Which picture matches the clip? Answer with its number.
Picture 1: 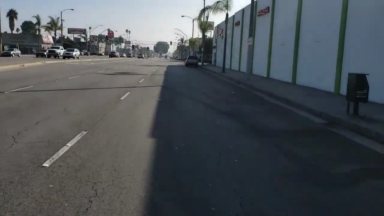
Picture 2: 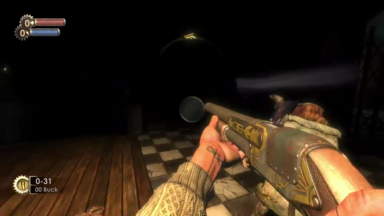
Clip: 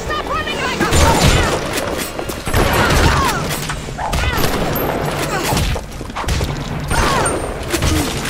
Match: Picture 2